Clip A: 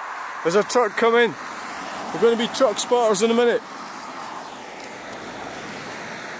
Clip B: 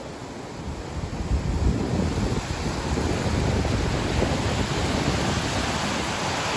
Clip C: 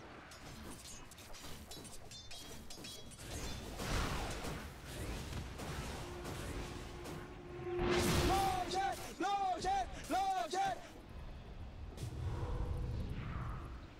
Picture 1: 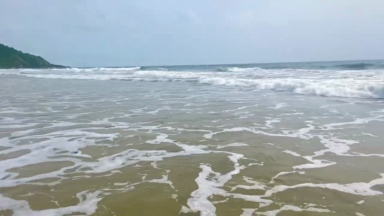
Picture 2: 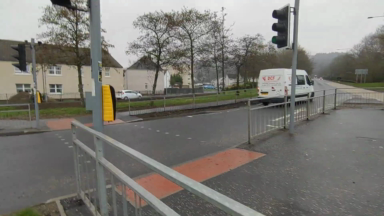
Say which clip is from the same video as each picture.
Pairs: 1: B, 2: A